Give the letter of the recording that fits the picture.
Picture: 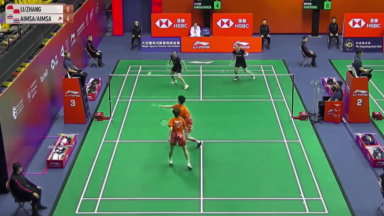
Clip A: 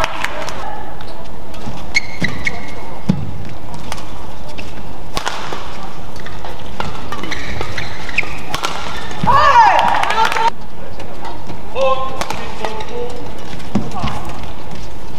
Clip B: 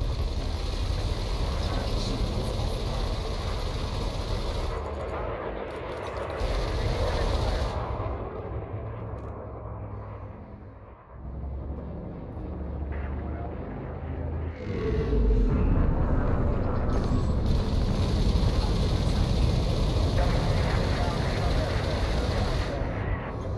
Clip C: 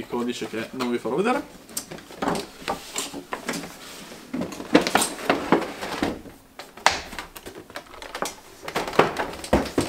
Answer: A